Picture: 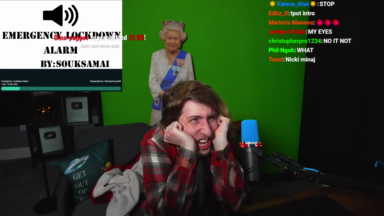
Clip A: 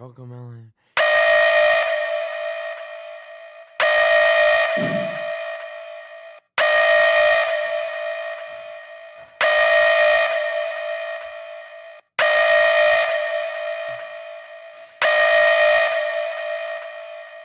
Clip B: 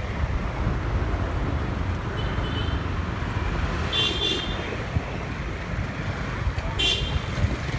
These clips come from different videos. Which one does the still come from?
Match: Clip A